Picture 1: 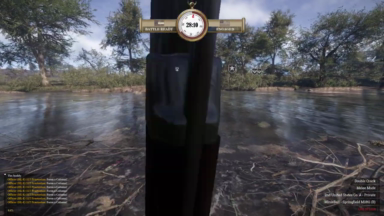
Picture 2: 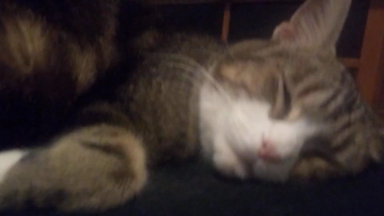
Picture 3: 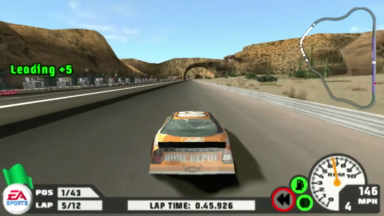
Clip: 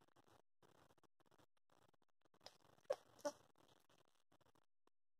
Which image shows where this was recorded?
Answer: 2